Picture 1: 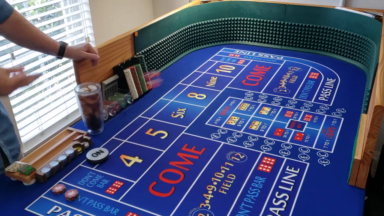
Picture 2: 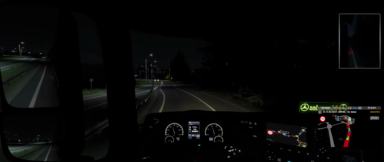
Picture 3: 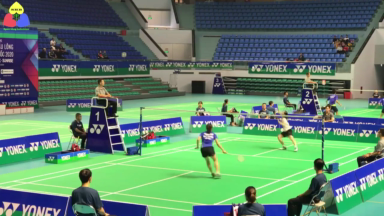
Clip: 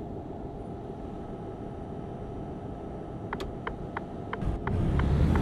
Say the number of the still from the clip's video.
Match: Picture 2